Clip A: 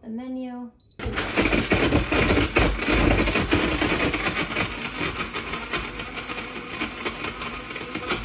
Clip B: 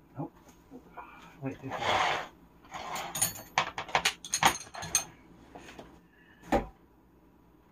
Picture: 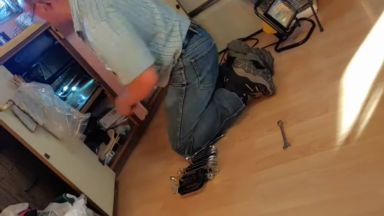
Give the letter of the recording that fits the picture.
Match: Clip B